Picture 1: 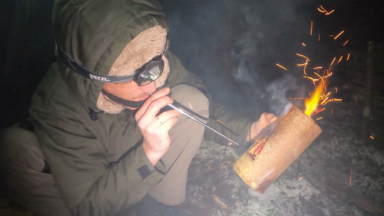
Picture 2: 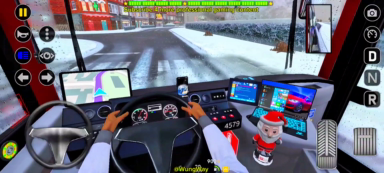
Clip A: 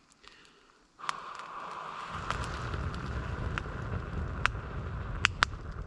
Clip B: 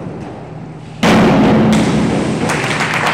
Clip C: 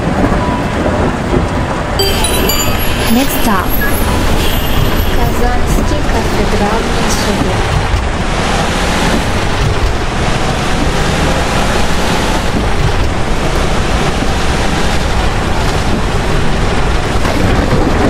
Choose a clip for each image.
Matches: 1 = A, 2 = C